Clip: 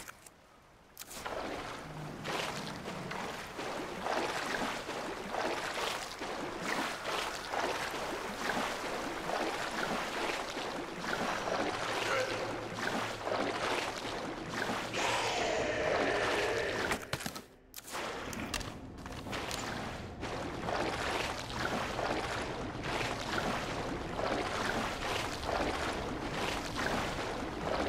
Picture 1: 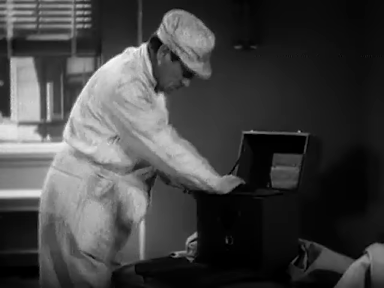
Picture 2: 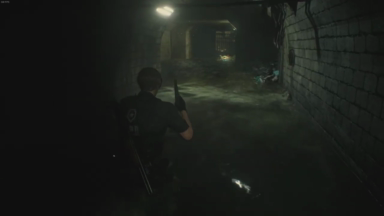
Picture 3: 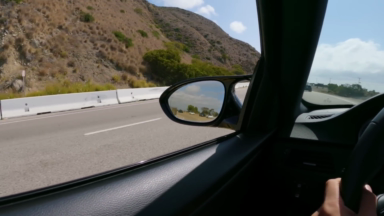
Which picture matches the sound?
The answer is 2